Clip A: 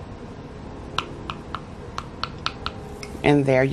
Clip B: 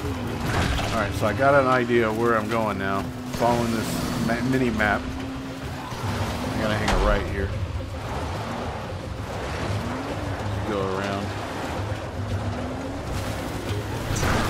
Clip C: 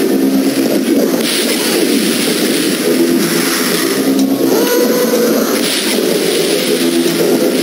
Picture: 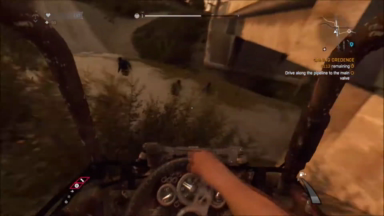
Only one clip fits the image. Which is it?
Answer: B